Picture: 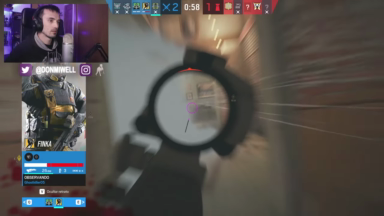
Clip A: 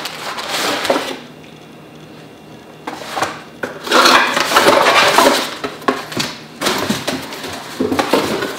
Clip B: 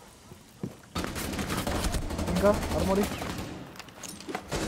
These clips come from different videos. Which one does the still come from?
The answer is B